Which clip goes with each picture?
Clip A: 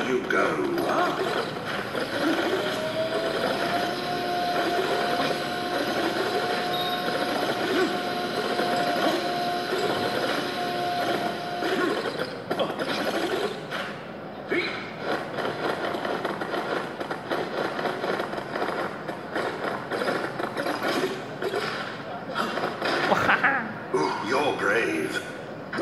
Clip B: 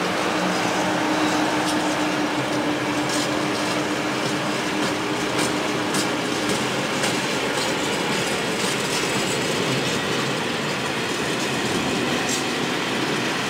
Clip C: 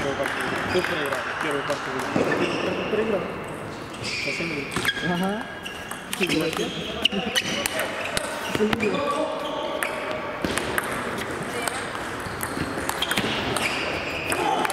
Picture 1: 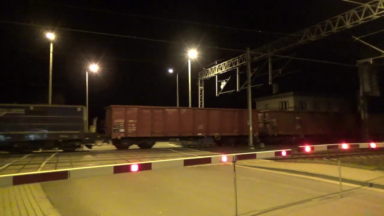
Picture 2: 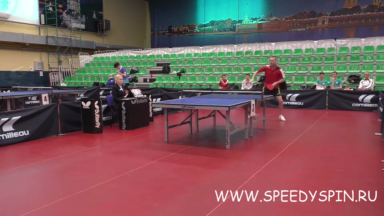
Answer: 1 B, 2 C